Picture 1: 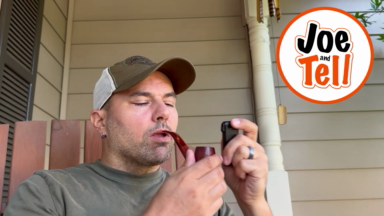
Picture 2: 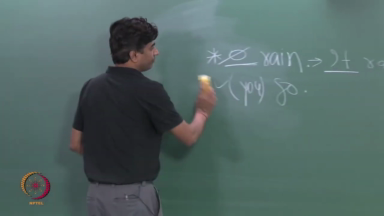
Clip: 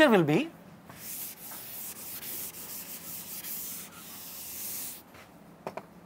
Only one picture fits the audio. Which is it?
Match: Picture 2